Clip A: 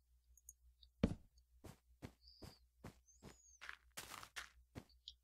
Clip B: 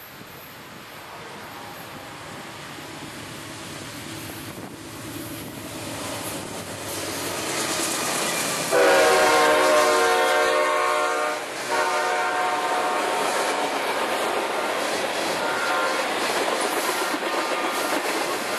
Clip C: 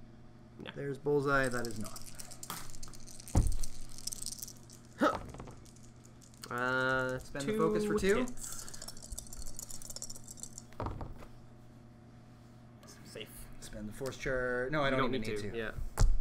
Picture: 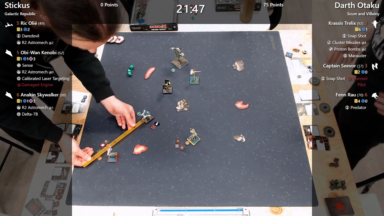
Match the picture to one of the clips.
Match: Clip C